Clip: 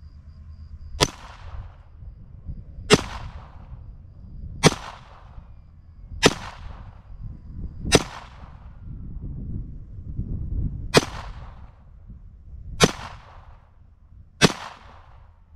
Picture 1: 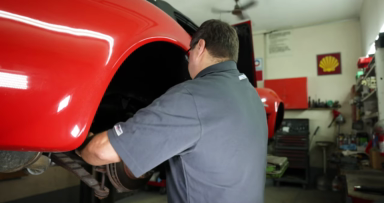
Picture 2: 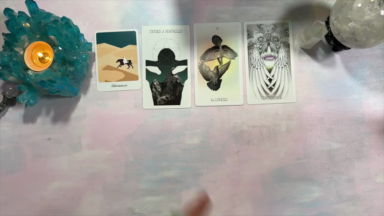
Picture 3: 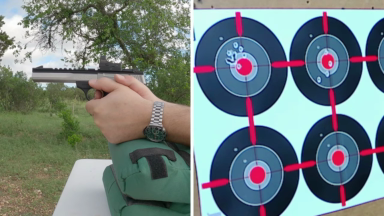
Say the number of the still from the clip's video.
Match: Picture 3